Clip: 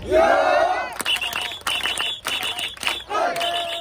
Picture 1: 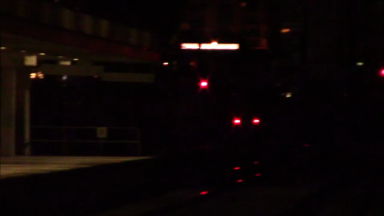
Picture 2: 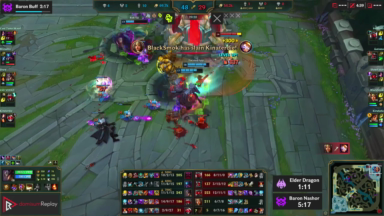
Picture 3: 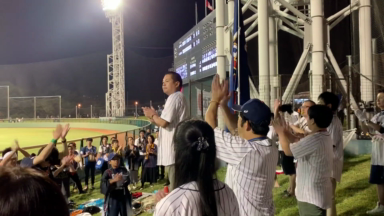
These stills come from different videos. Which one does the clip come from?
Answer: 3